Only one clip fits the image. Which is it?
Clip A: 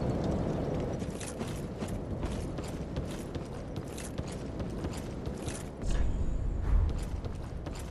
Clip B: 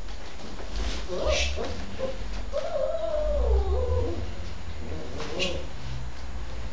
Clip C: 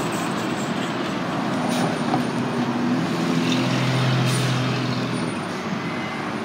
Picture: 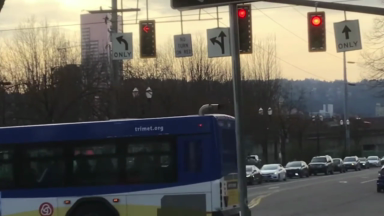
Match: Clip C